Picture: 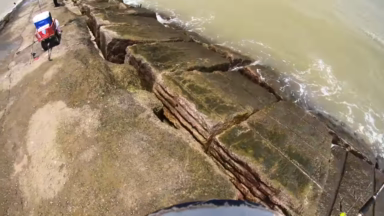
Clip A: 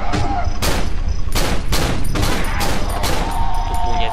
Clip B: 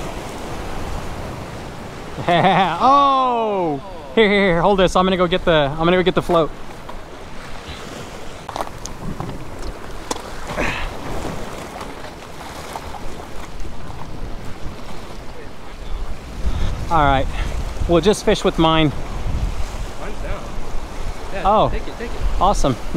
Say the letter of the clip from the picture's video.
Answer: B